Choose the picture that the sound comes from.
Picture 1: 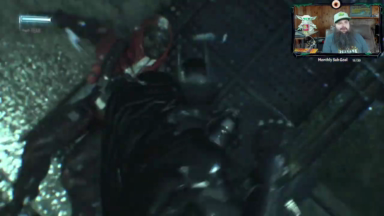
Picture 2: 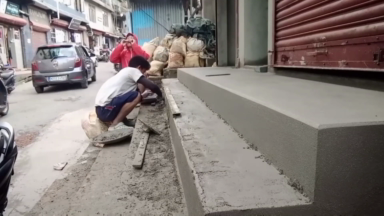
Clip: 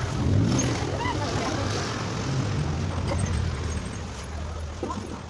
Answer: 2